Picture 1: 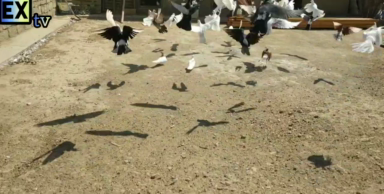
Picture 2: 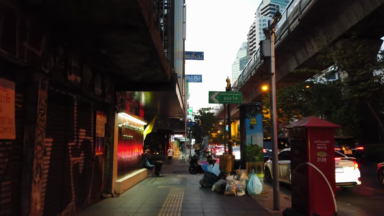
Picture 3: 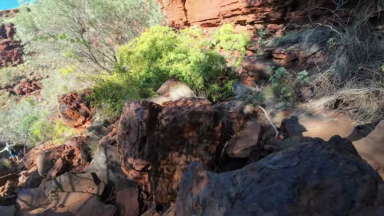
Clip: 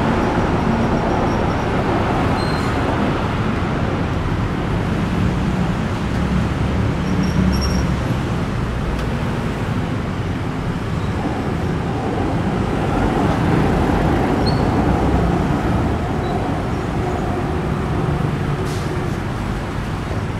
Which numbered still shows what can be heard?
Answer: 2